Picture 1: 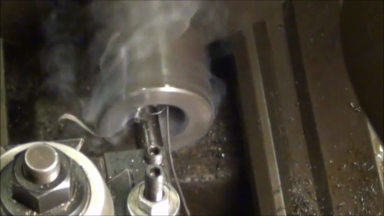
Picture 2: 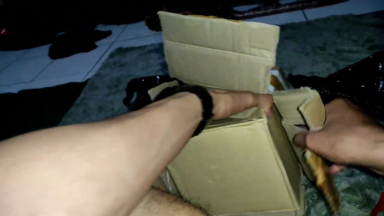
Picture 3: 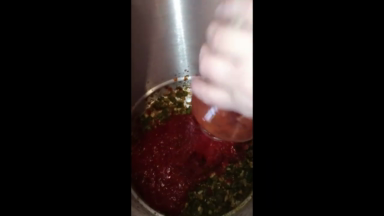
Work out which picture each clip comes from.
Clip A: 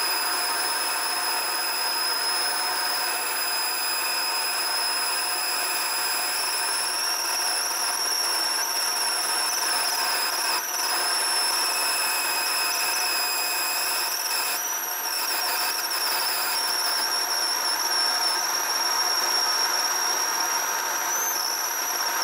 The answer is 1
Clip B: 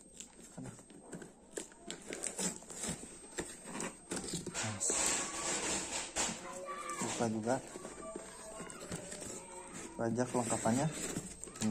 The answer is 2